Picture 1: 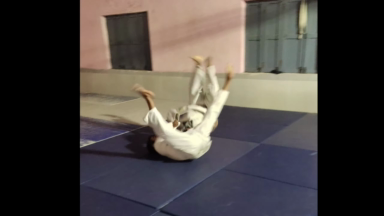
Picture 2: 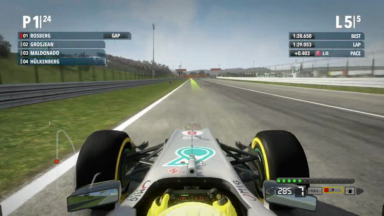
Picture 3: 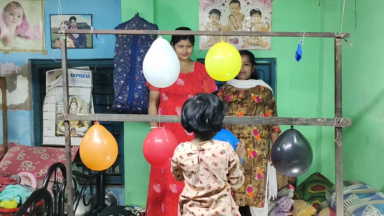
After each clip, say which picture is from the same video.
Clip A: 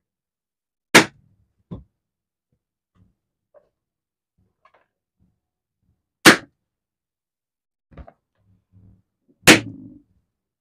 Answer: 3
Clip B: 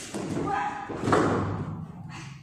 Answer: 1